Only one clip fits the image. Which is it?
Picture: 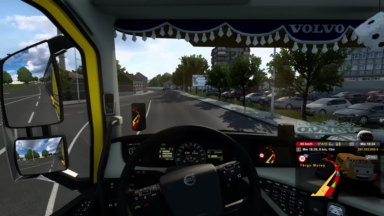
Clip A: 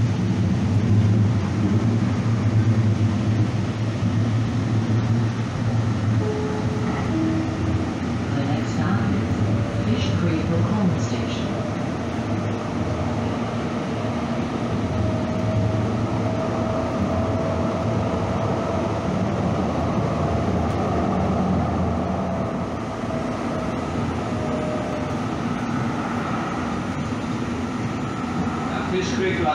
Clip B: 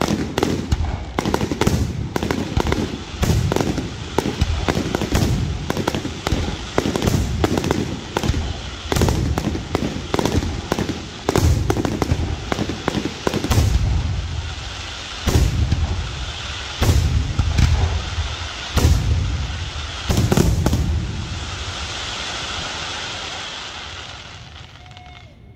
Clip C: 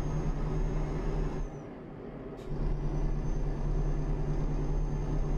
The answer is C